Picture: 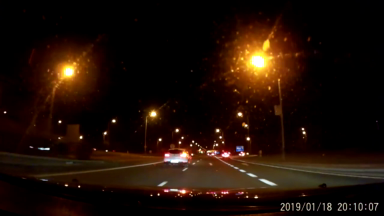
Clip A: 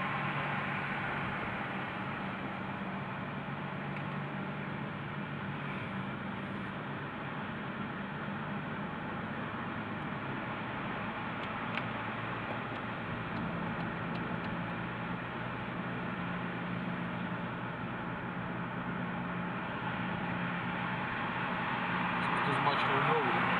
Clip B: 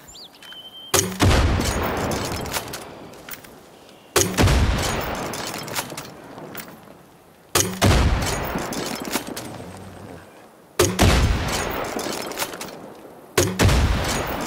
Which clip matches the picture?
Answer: A